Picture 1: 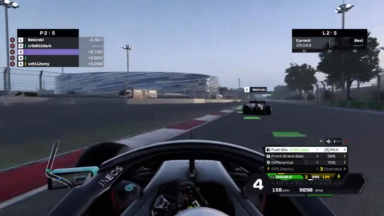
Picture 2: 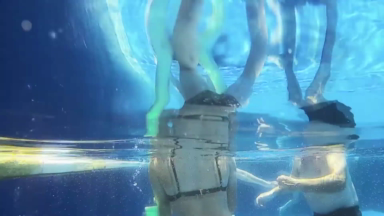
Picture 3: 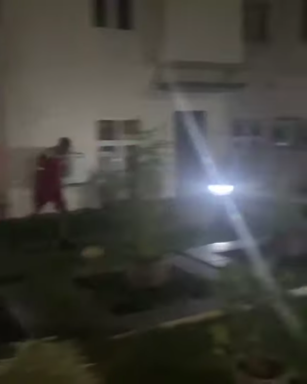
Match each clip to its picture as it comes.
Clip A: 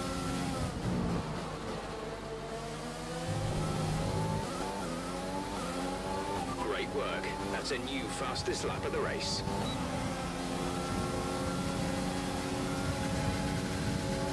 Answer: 1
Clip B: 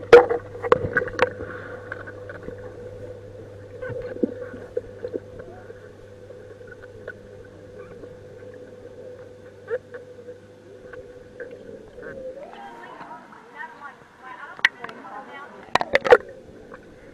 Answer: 2